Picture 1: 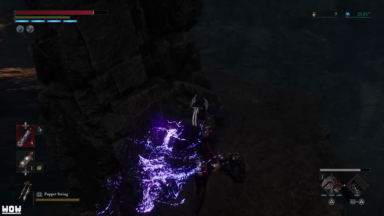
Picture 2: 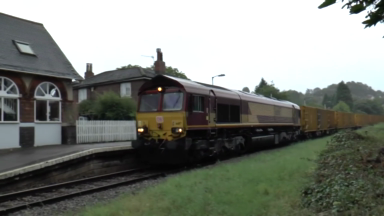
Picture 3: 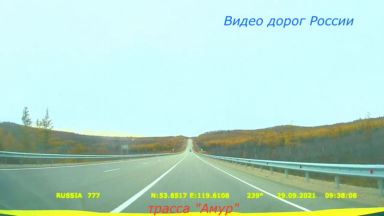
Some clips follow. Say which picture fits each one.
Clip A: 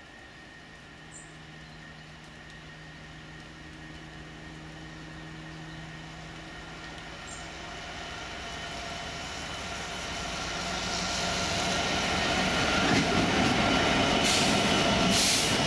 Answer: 2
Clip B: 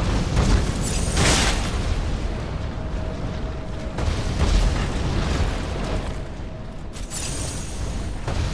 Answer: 1